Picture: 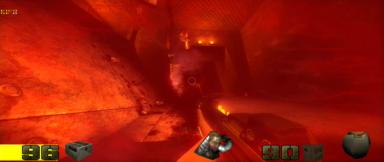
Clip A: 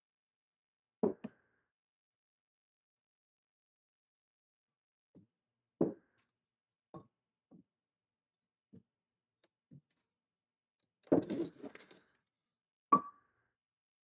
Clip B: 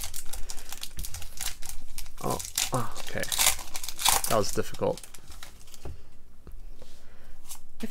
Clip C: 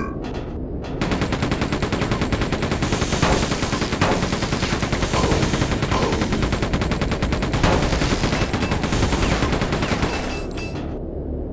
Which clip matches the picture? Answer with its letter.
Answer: C